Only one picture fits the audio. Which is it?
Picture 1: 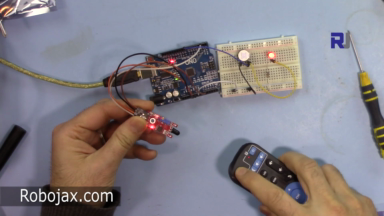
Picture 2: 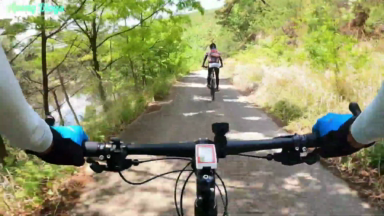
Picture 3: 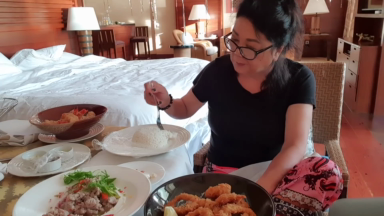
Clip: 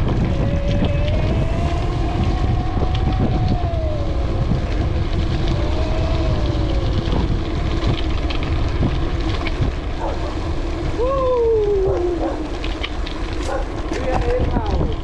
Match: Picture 2